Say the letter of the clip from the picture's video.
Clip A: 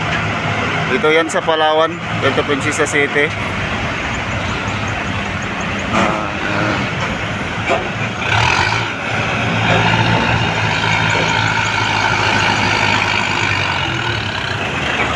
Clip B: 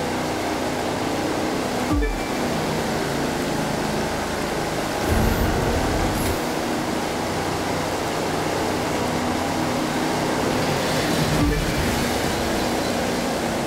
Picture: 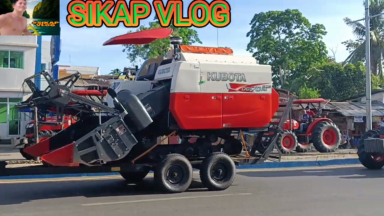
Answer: A